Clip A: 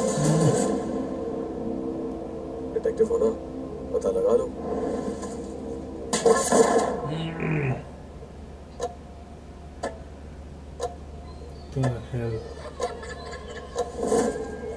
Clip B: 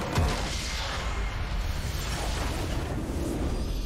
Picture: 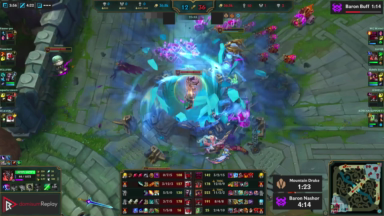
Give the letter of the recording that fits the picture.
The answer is B